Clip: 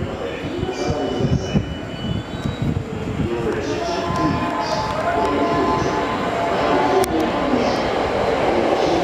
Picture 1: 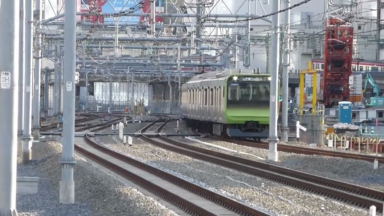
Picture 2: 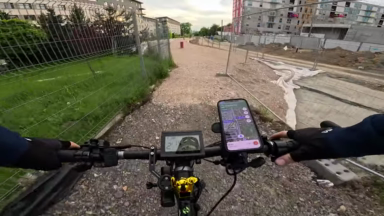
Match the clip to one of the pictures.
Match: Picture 1